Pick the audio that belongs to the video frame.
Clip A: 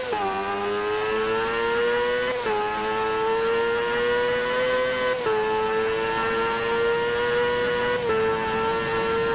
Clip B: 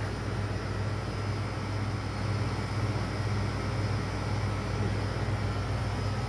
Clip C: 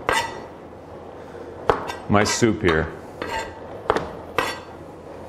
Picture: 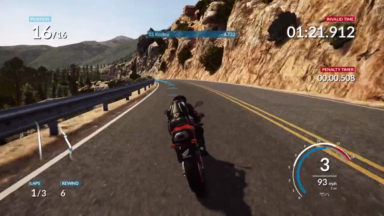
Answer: A